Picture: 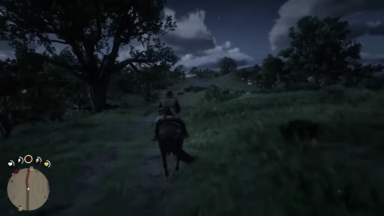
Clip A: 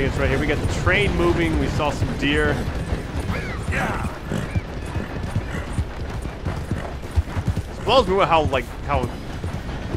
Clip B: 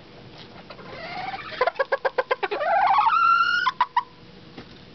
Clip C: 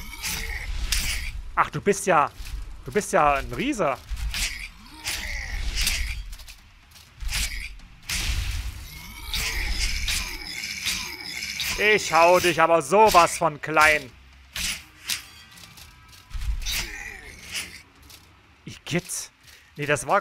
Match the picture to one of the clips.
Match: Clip A